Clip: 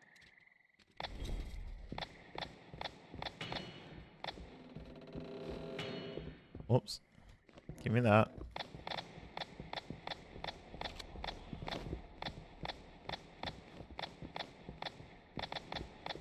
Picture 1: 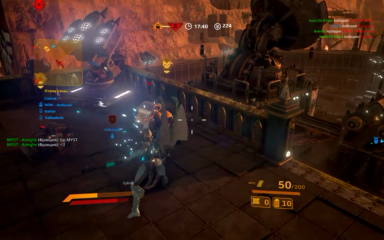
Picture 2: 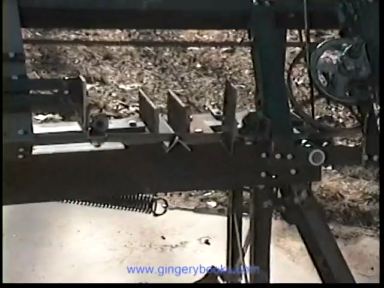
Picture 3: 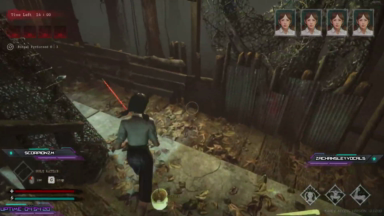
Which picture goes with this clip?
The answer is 3